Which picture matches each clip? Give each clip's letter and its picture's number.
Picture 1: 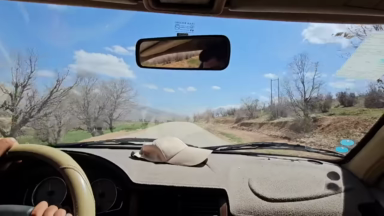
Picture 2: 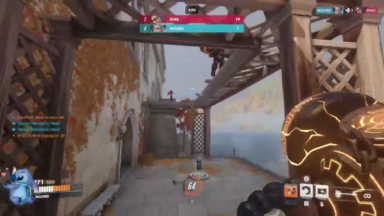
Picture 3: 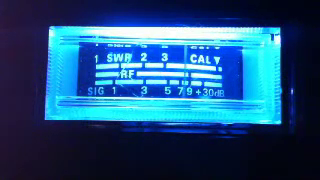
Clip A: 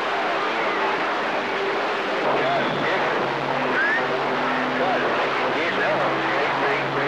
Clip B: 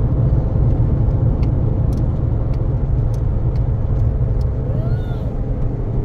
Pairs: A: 3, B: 1